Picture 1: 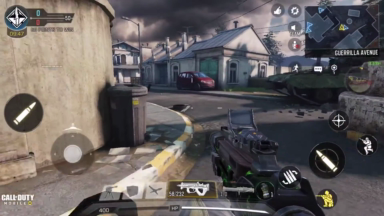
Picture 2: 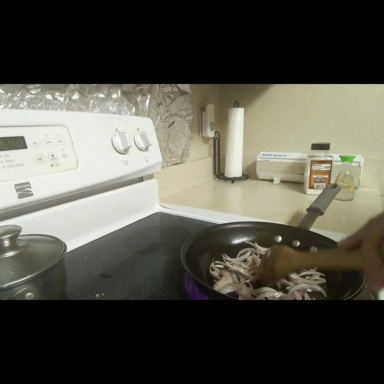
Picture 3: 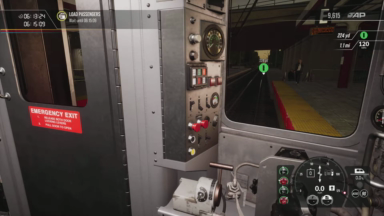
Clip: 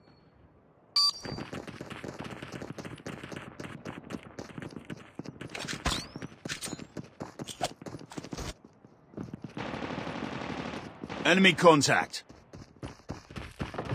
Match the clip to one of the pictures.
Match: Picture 1